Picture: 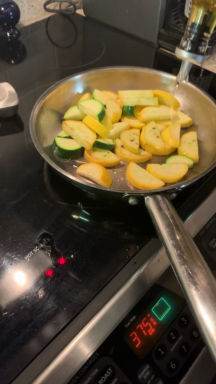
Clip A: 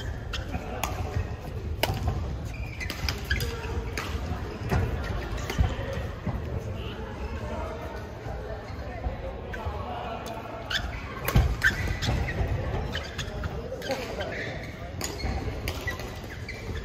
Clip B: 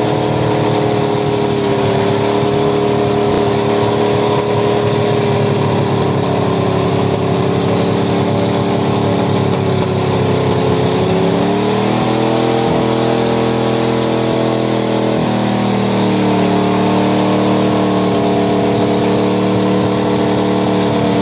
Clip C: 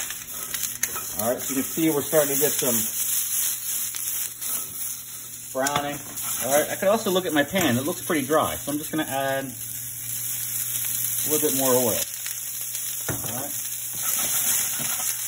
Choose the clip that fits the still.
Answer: C